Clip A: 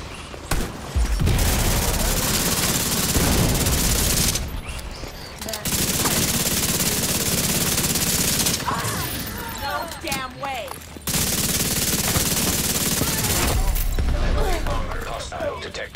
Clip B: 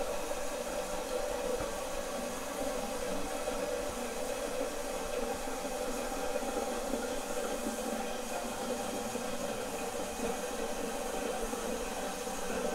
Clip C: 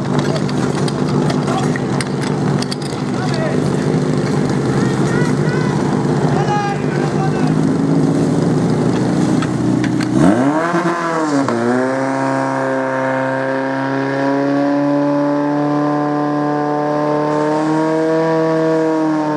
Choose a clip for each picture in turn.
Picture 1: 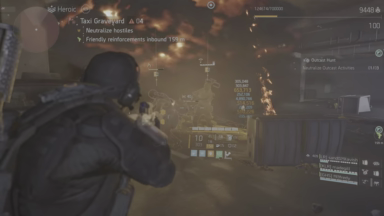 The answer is A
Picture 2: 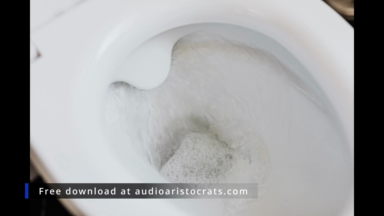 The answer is B